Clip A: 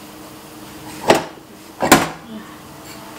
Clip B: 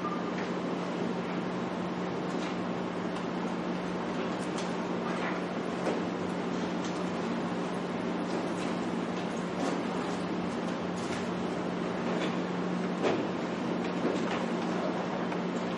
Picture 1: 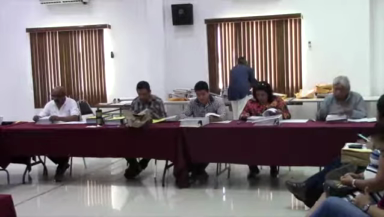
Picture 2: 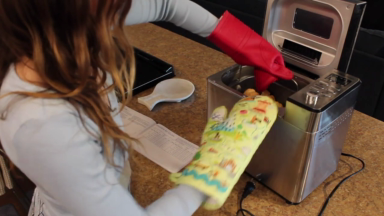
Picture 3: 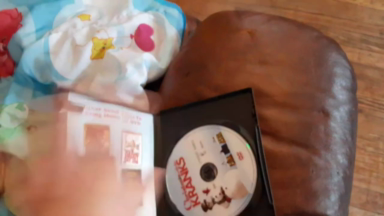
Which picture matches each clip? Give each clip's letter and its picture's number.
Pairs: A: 2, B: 1